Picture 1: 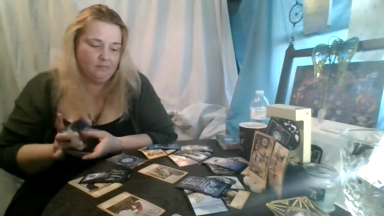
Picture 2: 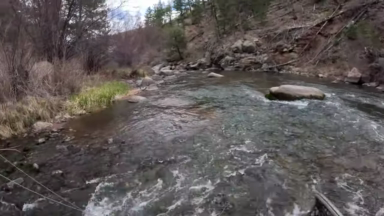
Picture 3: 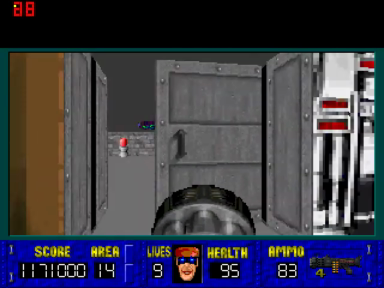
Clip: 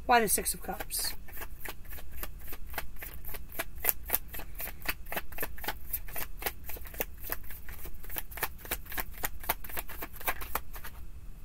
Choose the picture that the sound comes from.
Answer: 1